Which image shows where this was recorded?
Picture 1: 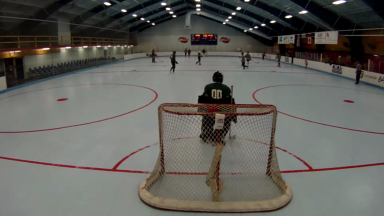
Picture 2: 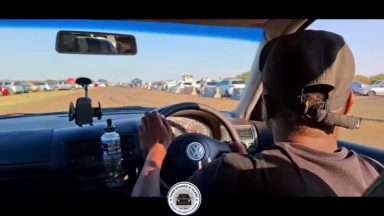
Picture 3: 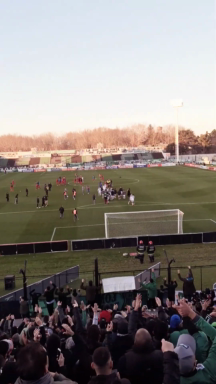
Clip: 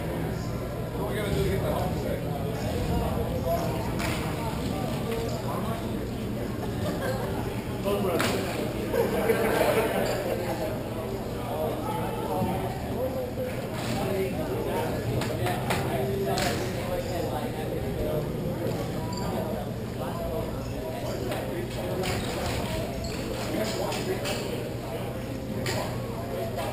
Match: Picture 1